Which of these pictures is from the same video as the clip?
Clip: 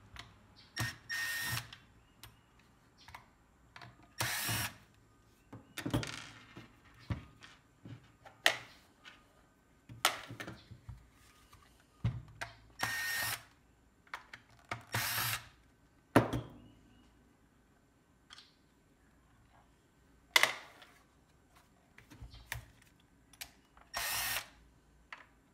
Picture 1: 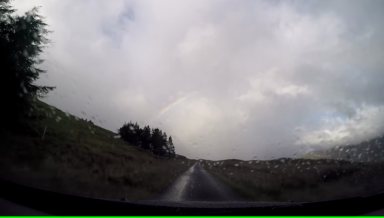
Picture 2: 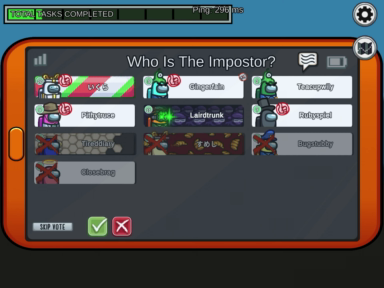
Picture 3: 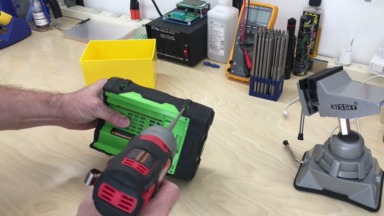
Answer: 3